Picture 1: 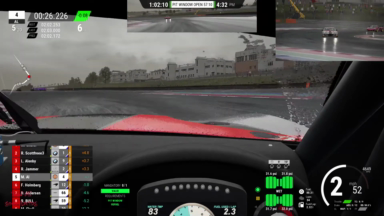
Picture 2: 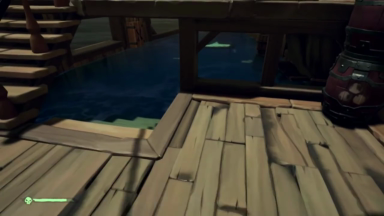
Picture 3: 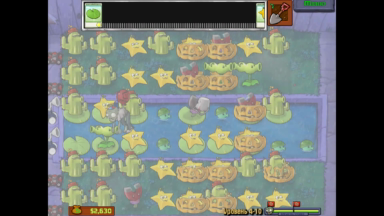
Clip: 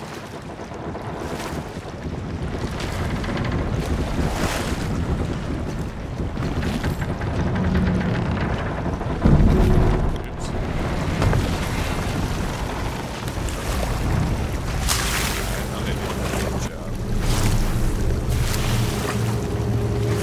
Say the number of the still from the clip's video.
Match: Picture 2